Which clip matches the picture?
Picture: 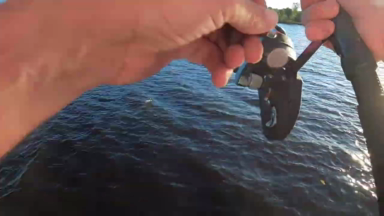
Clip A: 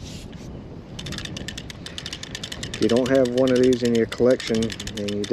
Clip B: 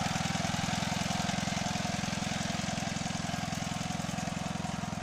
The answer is A